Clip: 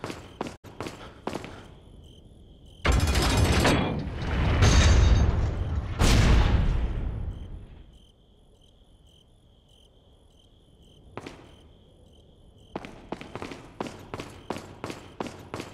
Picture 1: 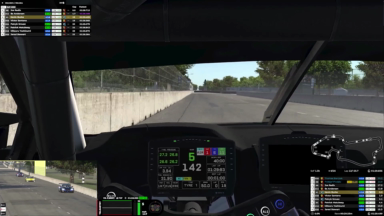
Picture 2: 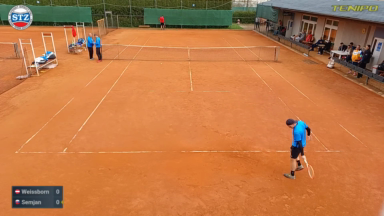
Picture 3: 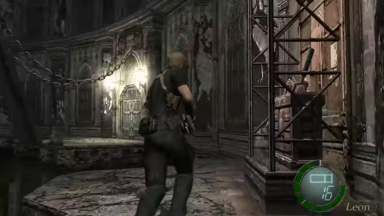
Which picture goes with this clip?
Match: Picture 3